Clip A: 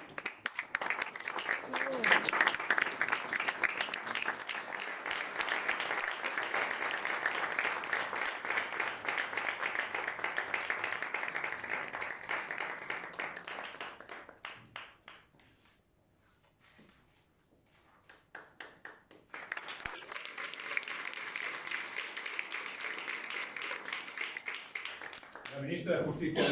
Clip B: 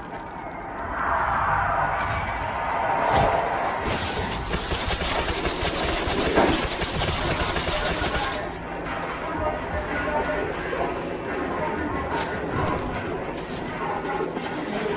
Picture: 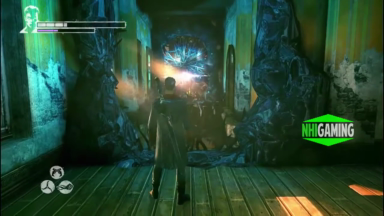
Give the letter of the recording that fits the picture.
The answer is B